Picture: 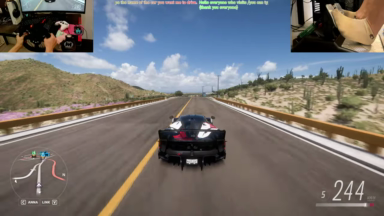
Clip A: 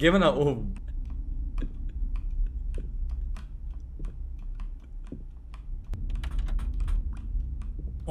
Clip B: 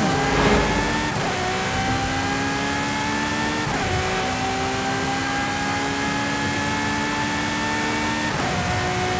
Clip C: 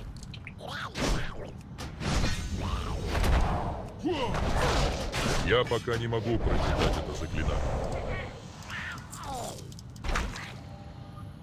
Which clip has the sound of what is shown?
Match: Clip B